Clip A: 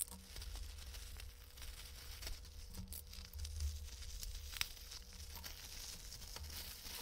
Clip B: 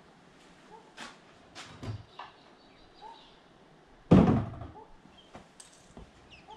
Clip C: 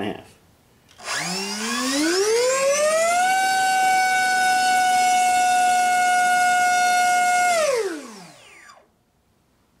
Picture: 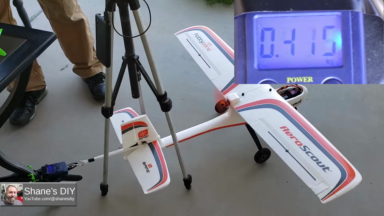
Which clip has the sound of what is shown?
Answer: C